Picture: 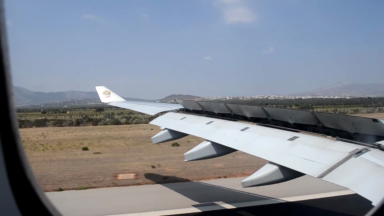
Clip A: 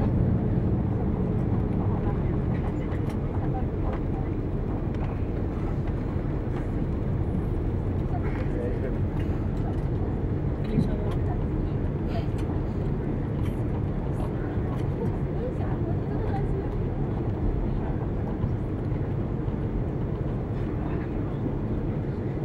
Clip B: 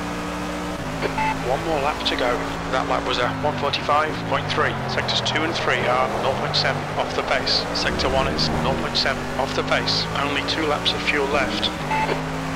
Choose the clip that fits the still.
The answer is A